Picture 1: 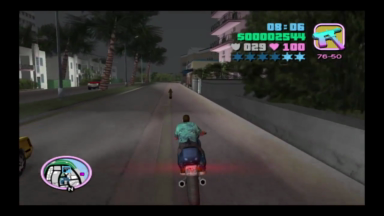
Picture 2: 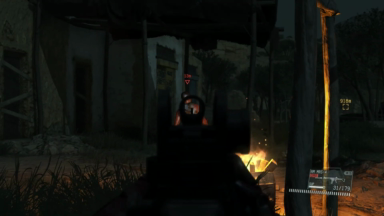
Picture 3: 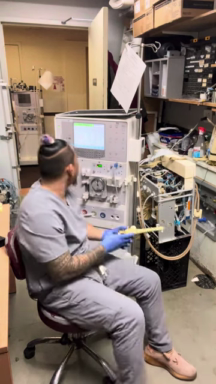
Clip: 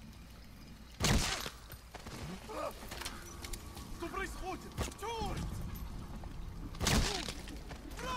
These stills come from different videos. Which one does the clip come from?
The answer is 2